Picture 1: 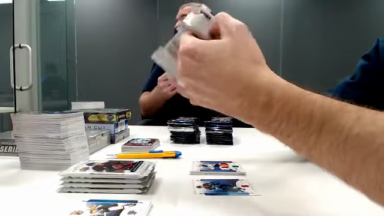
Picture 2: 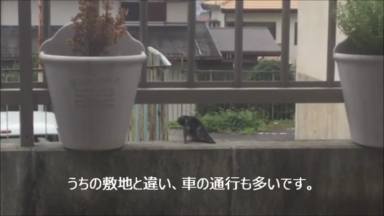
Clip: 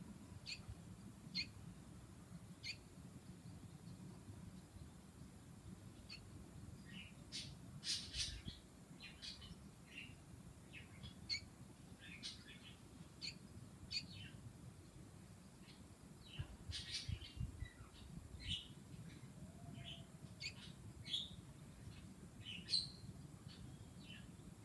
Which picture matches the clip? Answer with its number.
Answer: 2